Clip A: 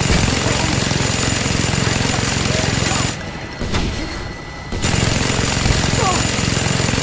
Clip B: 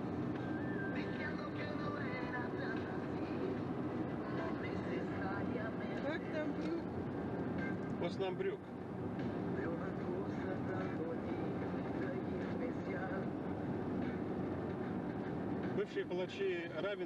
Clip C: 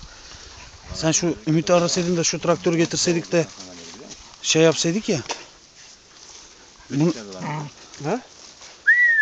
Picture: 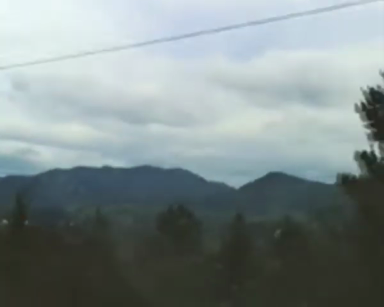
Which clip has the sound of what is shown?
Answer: B